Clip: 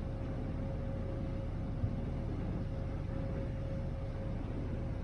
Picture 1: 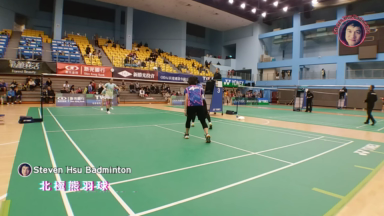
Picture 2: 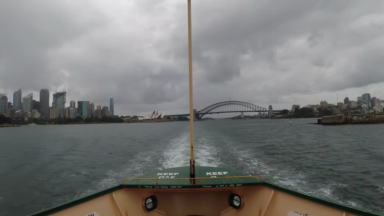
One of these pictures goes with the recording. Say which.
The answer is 2